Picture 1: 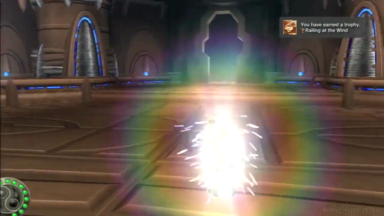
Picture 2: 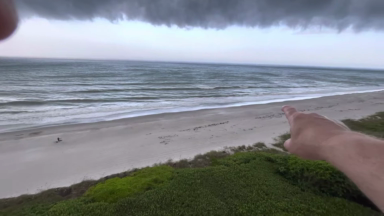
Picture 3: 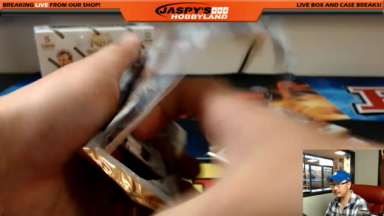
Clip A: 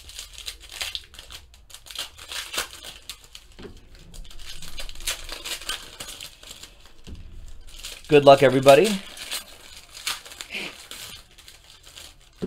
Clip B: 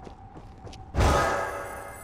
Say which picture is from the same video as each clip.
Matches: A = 3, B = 1